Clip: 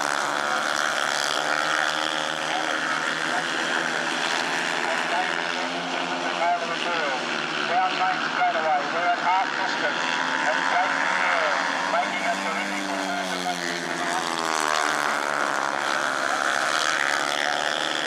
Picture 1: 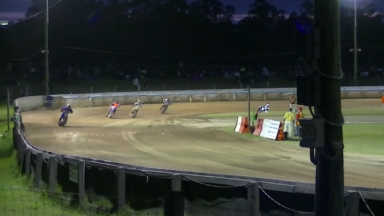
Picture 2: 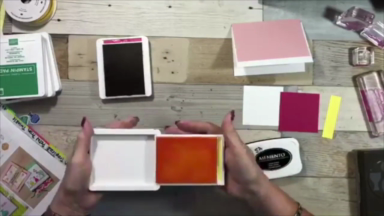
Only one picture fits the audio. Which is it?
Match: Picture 1